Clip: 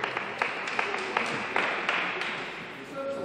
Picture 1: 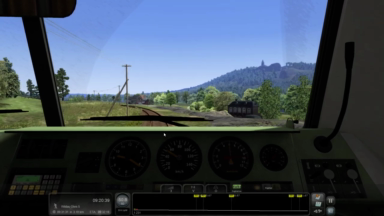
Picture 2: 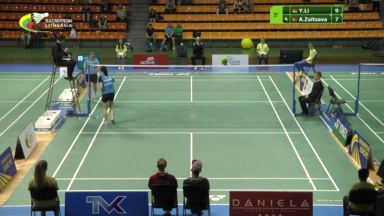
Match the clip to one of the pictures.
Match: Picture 2